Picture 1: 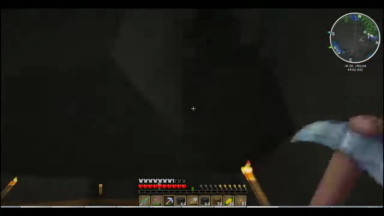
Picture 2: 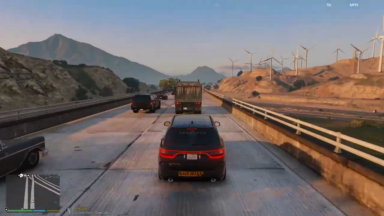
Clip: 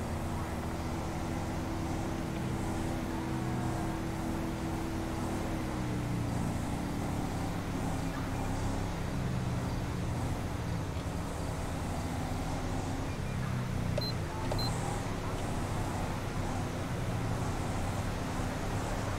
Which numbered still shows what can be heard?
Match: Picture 2